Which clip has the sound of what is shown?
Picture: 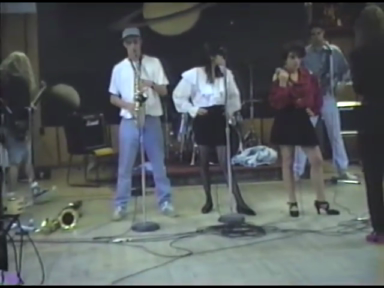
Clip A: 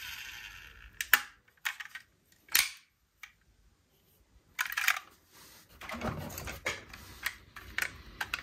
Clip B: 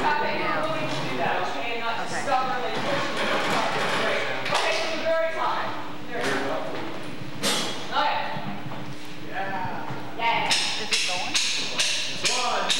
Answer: B